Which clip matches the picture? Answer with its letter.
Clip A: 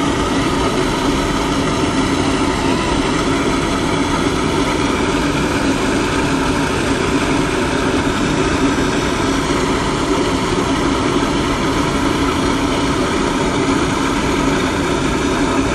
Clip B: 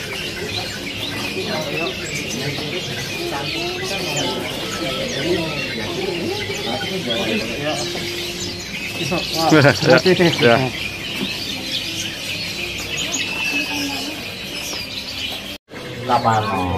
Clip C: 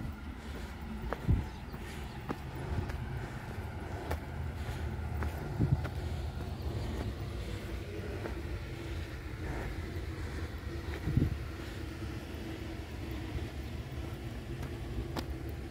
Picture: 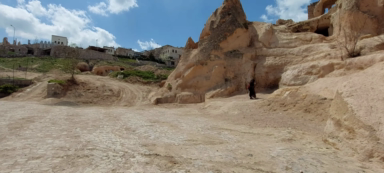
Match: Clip C